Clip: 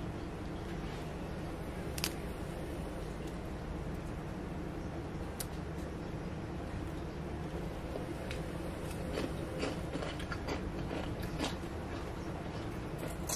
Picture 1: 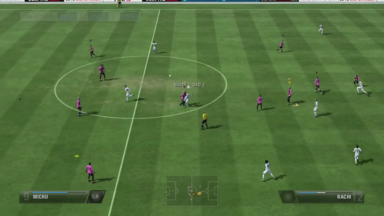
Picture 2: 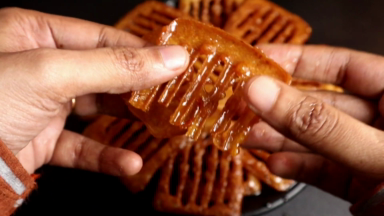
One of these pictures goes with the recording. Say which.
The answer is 2